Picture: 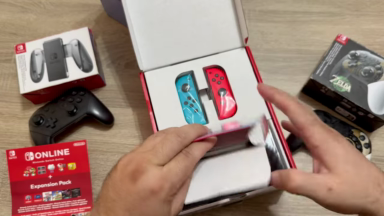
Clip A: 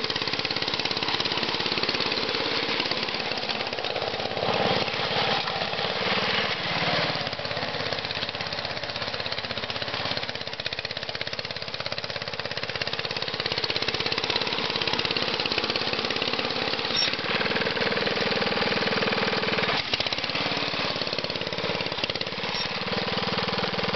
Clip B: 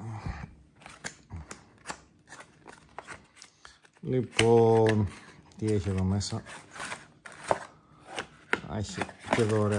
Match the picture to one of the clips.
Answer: B